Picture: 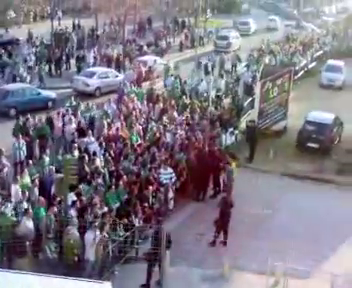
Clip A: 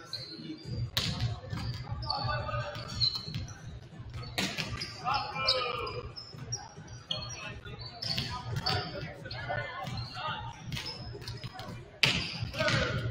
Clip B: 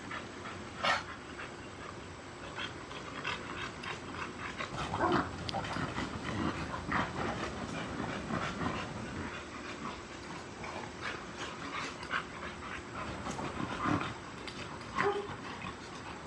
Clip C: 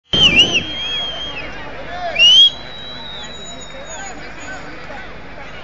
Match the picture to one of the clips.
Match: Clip C